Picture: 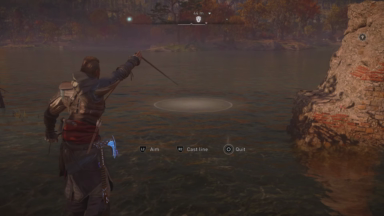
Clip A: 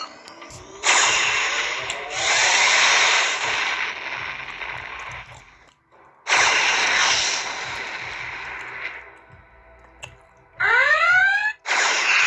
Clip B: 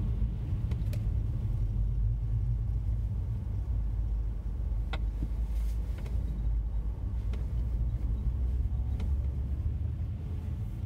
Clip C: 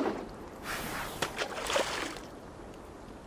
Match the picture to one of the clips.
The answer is C